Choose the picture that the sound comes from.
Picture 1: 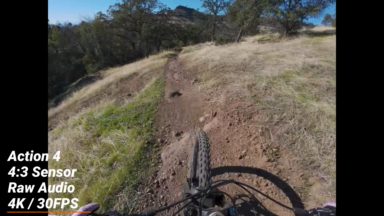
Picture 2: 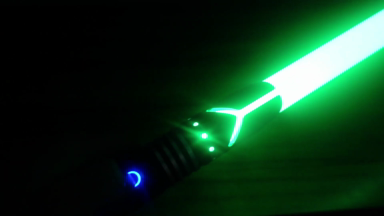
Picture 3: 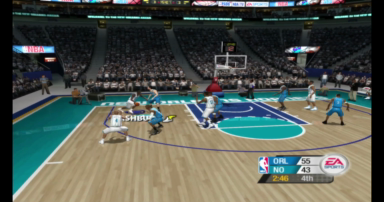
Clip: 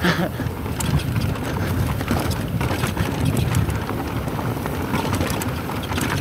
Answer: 1